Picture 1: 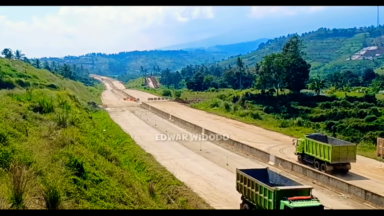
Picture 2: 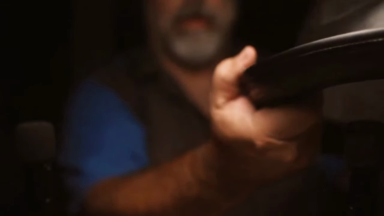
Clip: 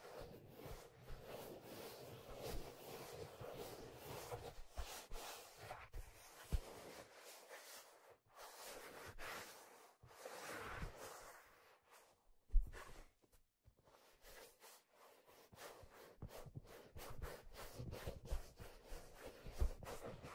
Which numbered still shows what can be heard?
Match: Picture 2